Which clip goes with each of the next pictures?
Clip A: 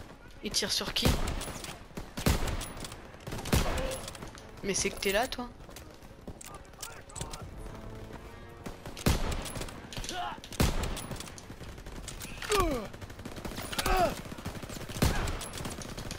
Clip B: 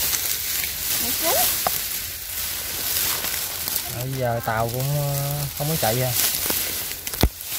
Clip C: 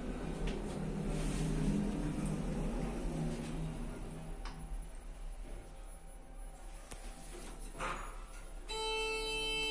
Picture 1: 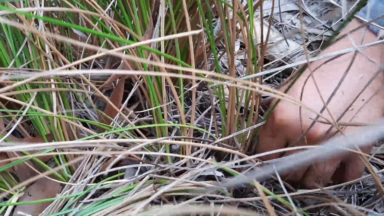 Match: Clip B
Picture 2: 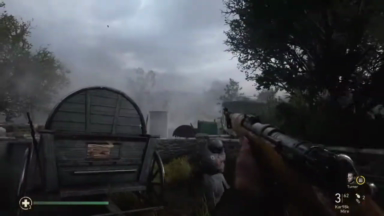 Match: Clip A